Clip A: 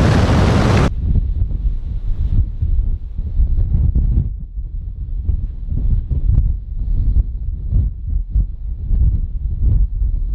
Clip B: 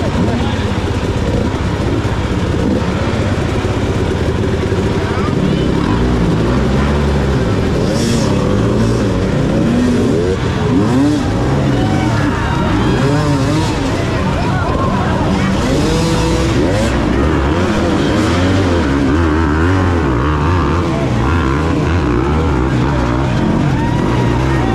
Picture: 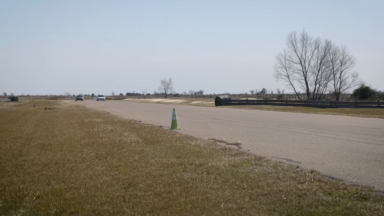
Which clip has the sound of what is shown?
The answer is A